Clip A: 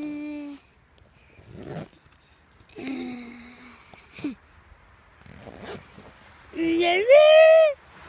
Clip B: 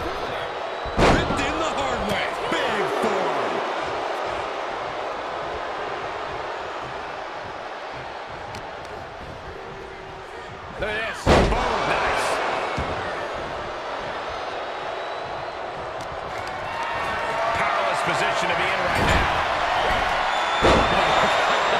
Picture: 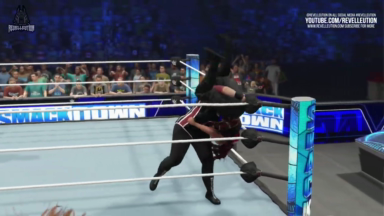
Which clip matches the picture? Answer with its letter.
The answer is B